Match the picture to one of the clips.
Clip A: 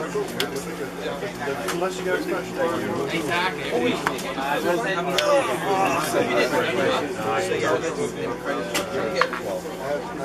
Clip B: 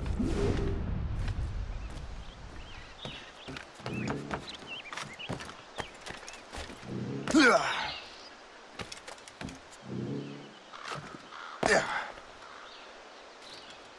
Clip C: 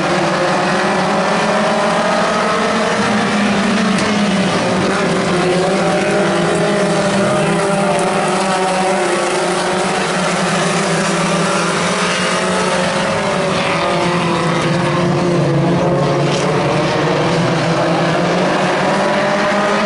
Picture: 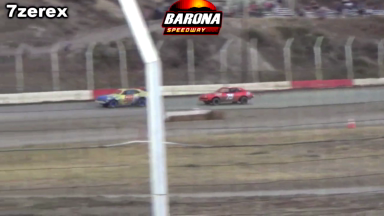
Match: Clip C